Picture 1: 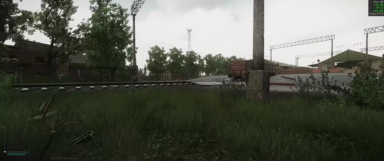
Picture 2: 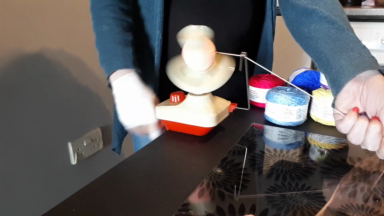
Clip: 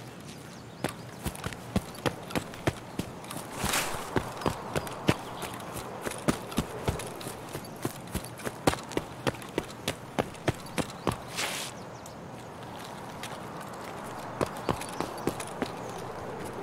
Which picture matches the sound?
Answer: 1